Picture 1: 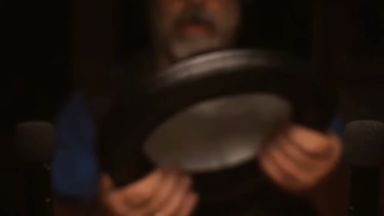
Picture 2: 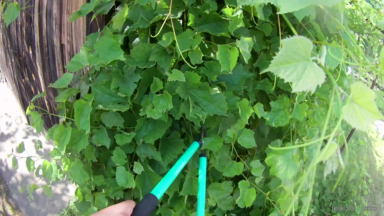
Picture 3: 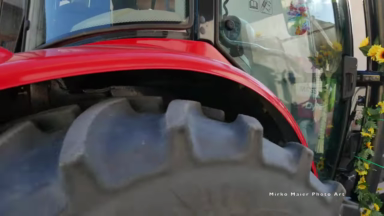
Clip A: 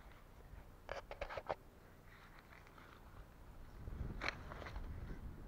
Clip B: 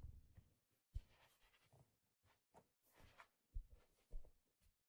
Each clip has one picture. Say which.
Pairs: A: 2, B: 1